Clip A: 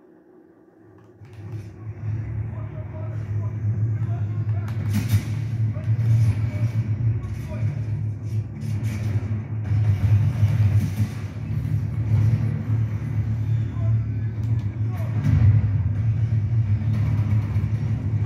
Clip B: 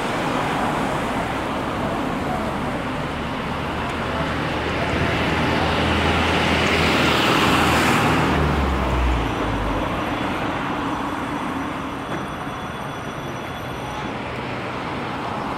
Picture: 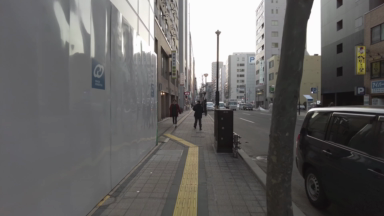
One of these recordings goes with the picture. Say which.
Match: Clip B